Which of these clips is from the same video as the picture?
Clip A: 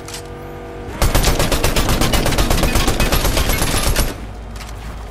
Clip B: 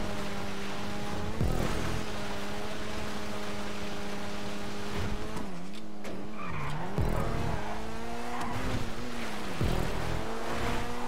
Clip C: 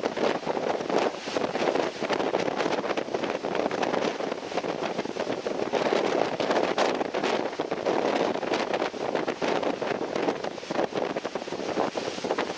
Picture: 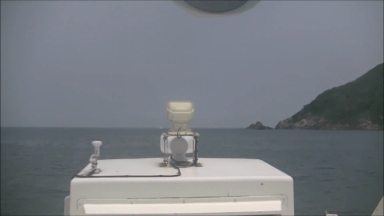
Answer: C